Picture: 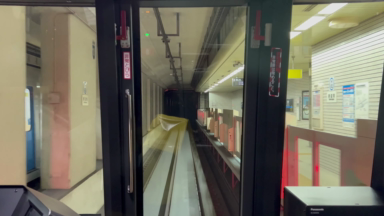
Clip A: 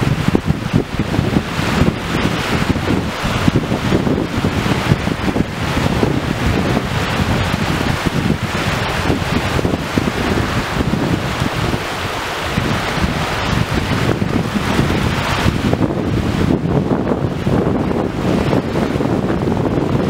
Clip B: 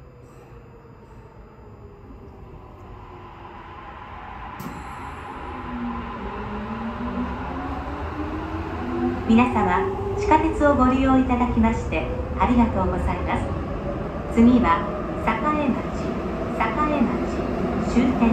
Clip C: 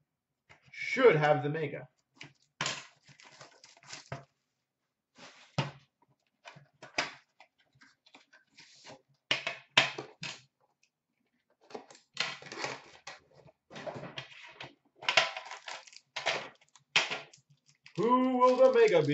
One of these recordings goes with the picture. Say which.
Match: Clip B